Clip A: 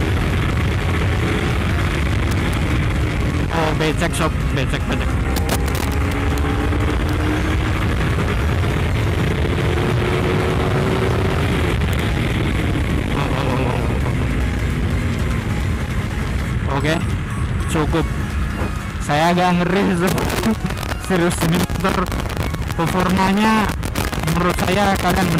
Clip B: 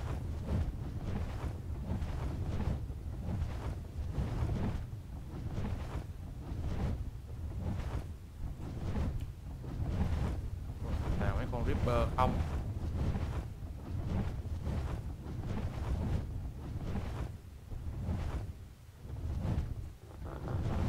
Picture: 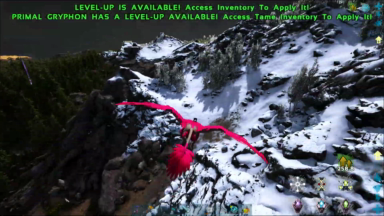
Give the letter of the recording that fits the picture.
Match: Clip B